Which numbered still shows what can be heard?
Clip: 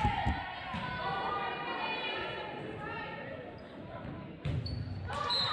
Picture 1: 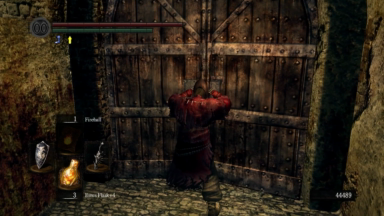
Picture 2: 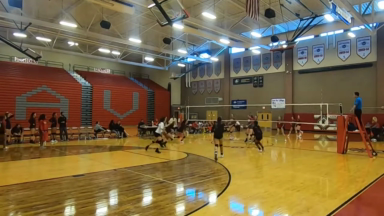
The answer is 2